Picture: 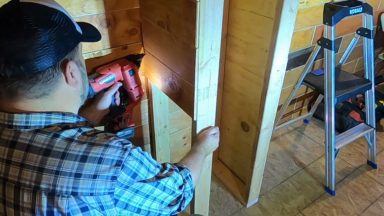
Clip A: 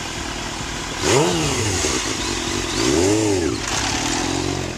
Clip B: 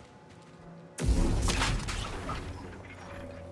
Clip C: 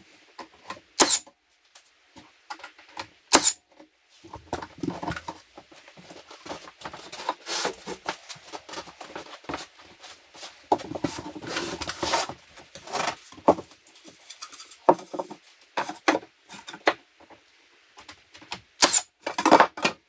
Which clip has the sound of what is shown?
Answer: C